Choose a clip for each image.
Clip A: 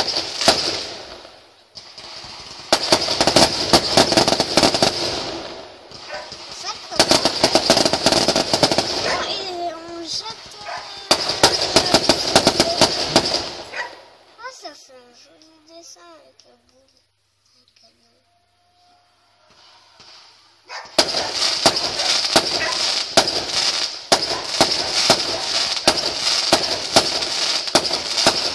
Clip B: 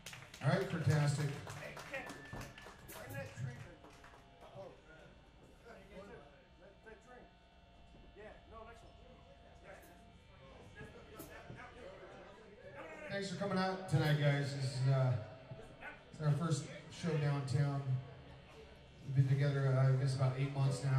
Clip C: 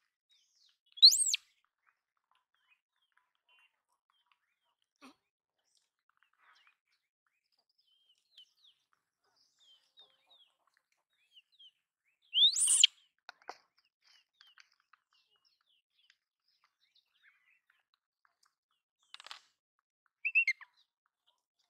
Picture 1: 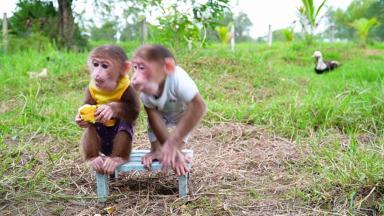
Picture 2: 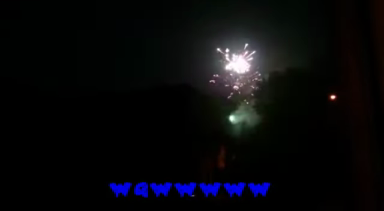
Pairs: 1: C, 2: A